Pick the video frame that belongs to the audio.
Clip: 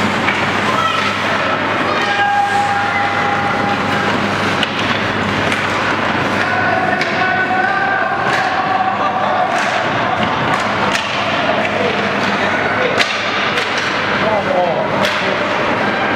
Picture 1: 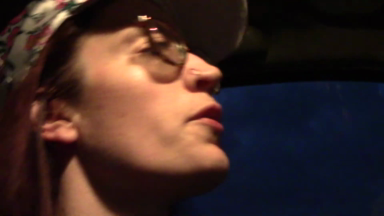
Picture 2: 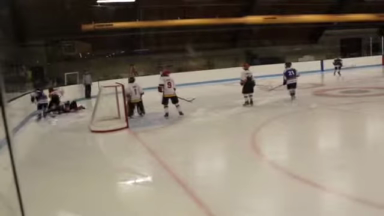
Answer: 2